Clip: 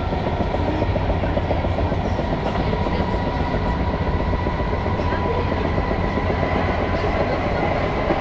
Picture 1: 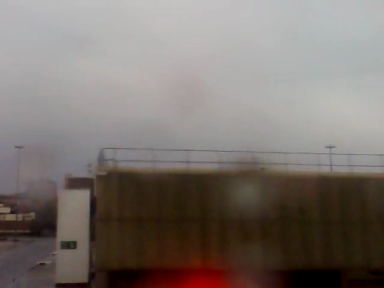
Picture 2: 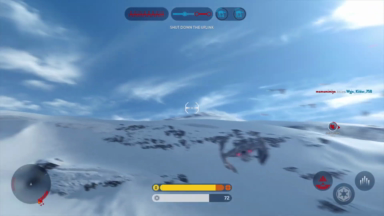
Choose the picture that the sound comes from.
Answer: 1